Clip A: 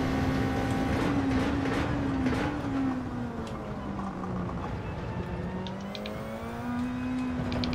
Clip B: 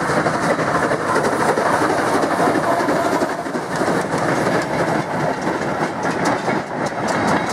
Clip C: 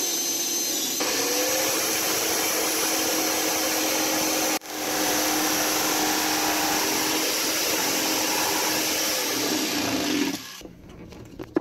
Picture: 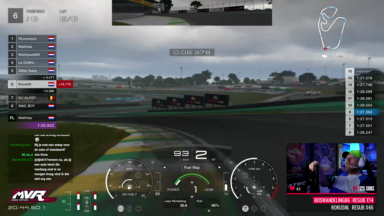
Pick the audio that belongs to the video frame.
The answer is A